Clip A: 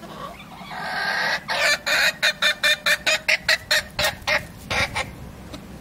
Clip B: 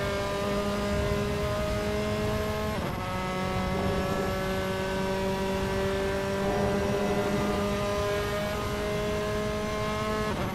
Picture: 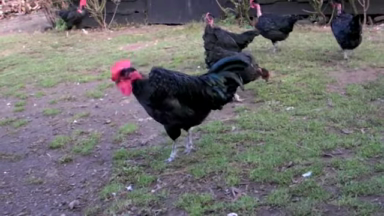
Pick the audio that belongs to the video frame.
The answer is A